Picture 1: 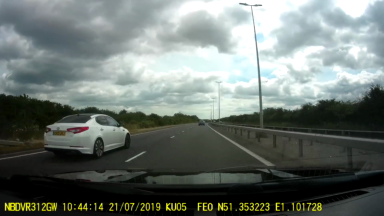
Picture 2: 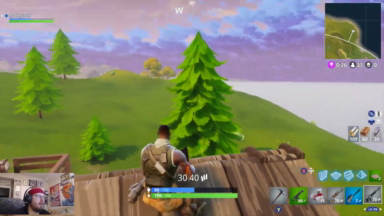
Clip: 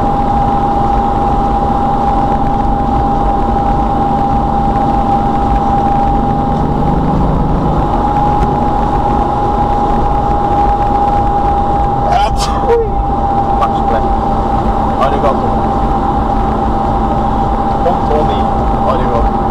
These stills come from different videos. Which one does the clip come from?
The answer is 1